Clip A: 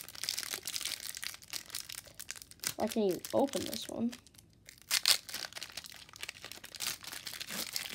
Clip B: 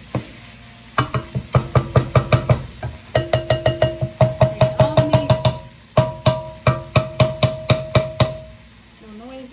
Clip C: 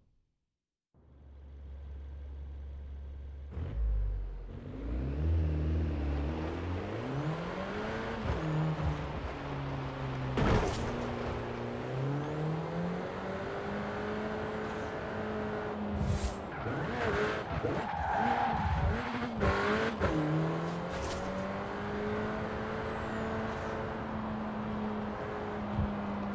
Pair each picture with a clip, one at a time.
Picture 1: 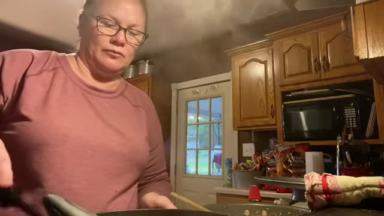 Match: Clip B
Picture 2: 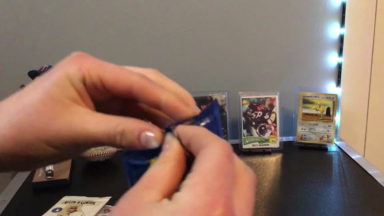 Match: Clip A